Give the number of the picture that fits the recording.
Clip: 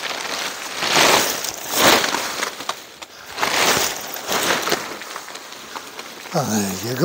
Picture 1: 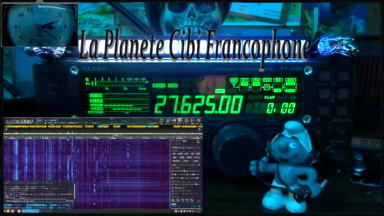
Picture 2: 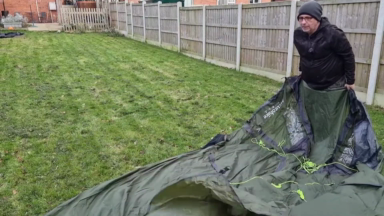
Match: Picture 2